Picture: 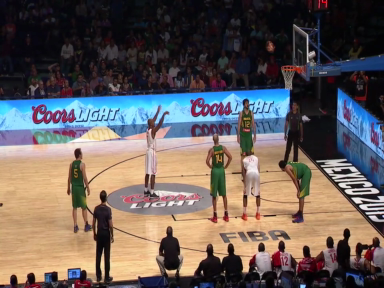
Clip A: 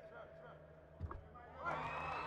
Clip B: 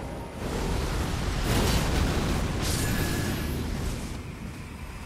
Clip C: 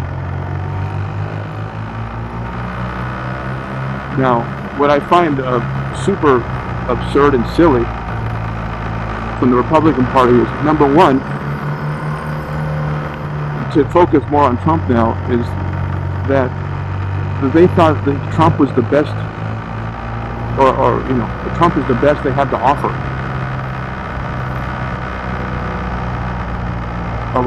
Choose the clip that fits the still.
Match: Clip A